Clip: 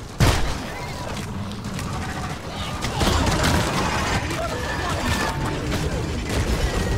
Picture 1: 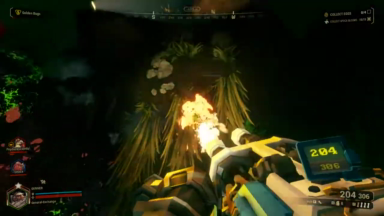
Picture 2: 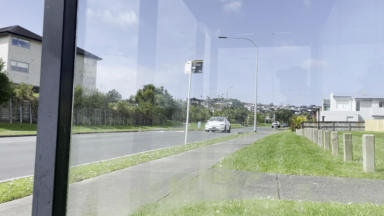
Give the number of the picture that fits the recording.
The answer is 1